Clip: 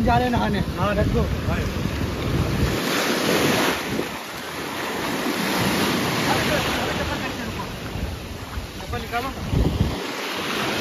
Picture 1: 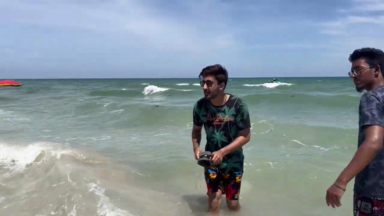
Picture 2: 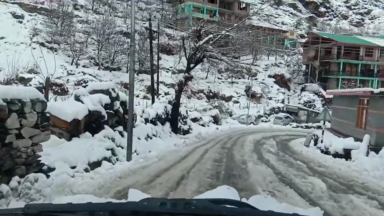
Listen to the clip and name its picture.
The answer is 1